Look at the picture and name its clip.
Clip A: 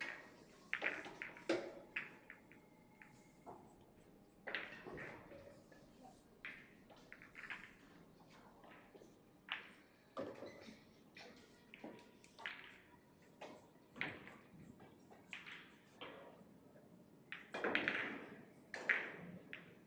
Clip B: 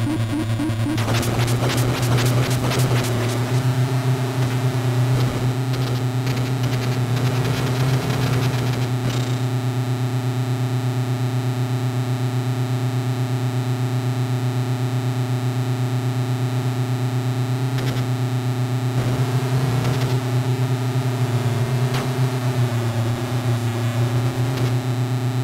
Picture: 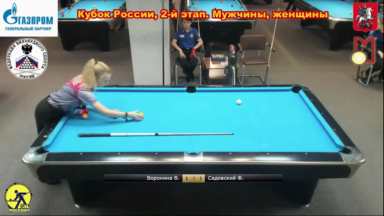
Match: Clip A